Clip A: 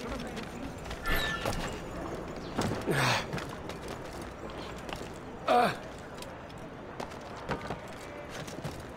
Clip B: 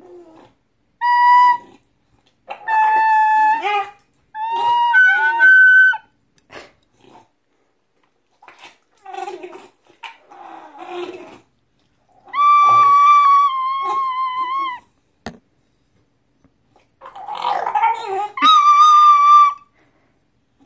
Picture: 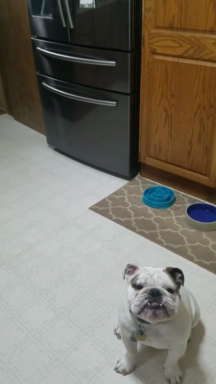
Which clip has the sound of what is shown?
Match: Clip B